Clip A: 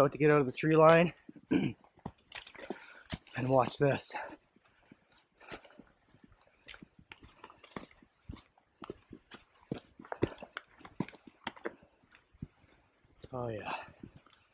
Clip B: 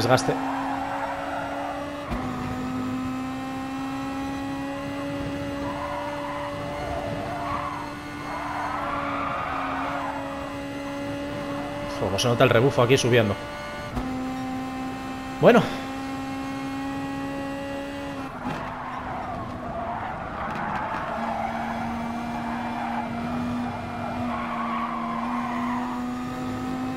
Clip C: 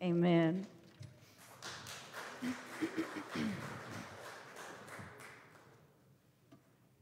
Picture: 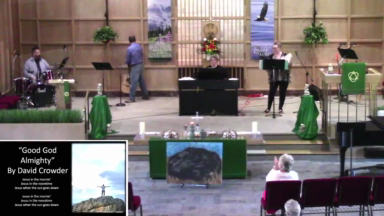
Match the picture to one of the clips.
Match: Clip C